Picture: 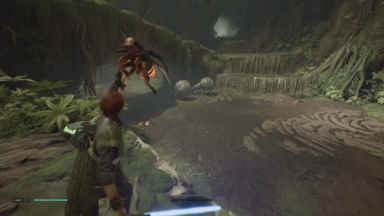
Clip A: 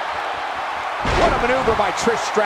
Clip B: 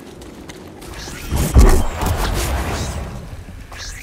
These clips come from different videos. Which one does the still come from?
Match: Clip B